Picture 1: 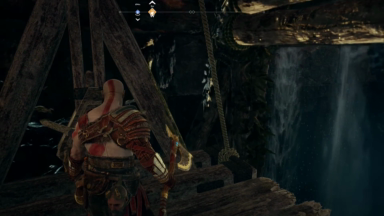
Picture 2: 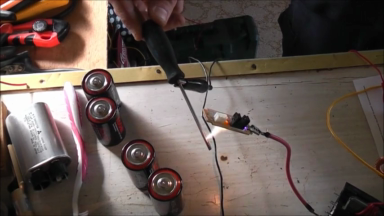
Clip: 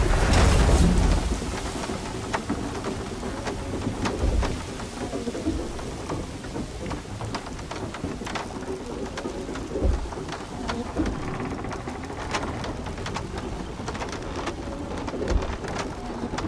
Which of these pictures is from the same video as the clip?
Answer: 1